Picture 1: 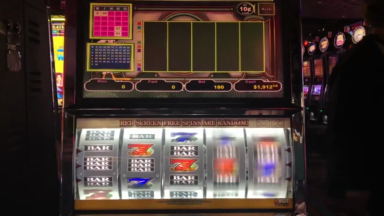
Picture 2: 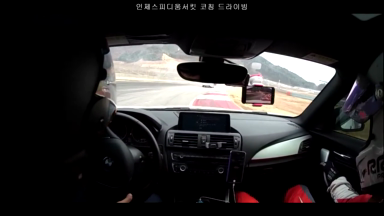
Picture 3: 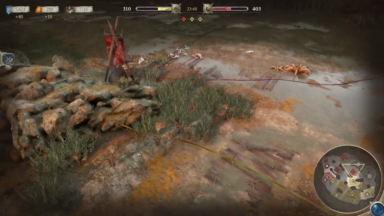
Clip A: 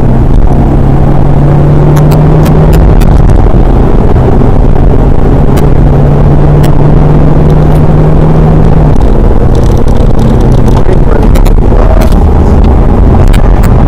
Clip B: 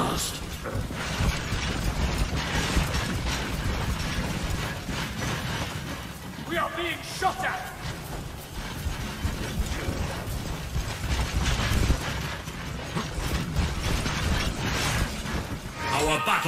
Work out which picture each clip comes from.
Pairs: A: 2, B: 3